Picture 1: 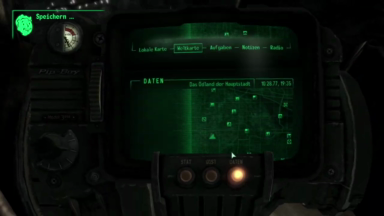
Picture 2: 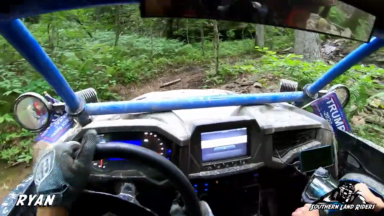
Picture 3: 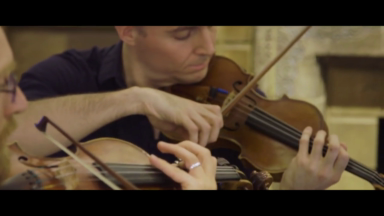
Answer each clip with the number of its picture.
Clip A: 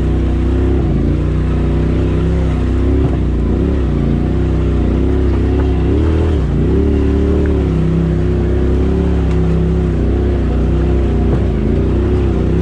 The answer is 2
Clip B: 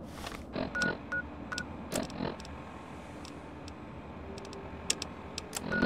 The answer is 1